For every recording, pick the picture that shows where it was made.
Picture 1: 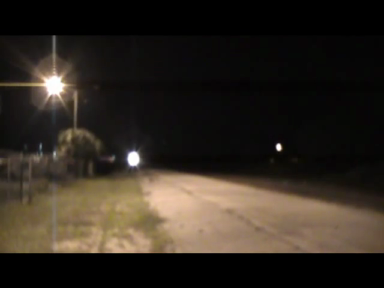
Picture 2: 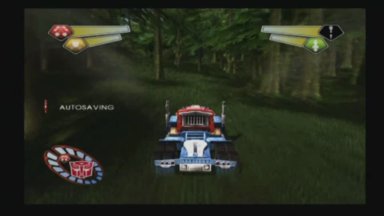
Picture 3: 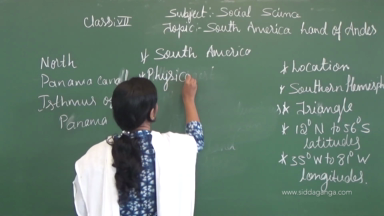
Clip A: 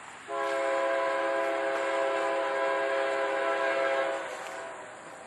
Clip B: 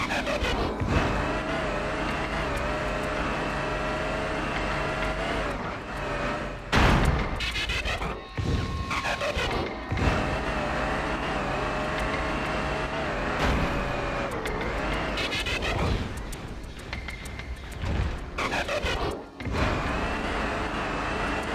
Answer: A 1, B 2